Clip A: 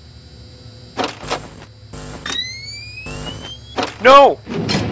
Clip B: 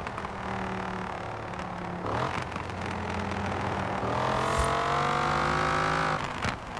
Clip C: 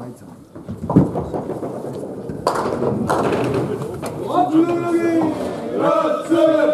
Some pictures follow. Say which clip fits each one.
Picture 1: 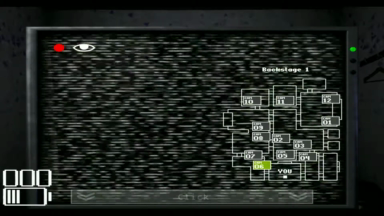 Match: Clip A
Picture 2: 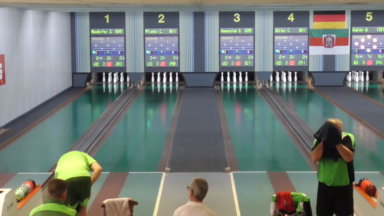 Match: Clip C